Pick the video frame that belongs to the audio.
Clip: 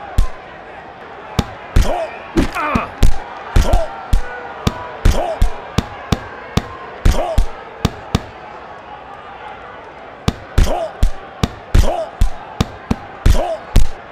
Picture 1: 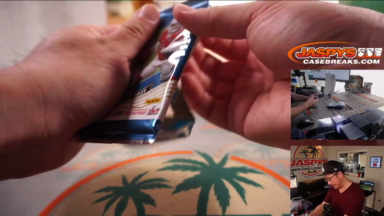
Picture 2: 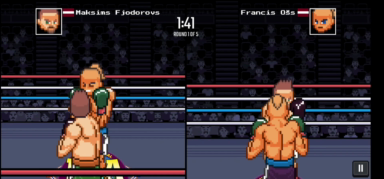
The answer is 2